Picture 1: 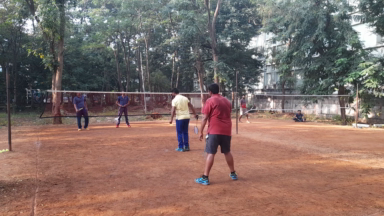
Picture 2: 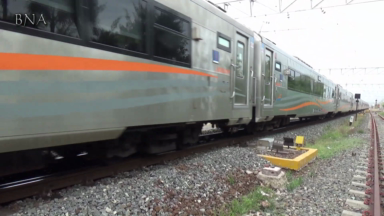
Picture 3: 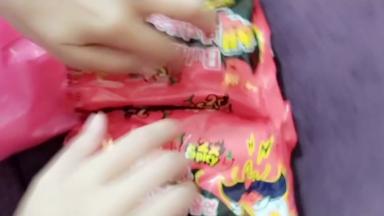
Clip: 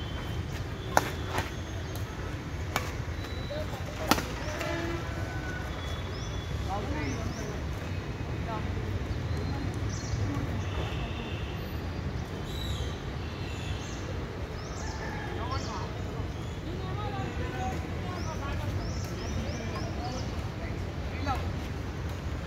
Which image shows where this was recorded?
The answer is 1